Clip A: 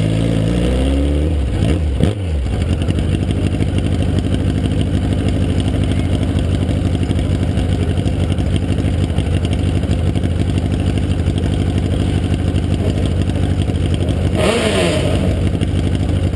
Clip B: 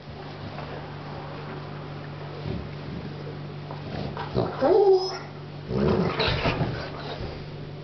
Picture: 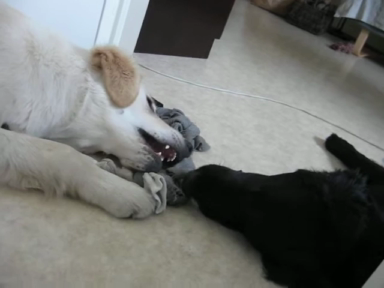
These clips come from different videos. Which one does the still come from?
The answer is B